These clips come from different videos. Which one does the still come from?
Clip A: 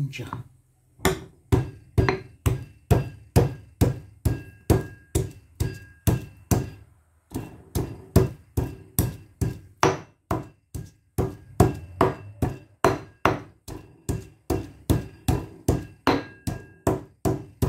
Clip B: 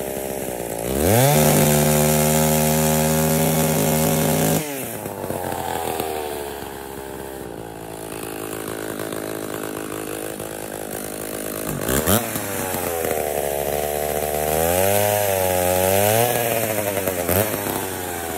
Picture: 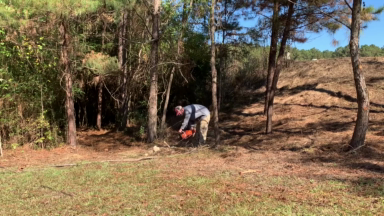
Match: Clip B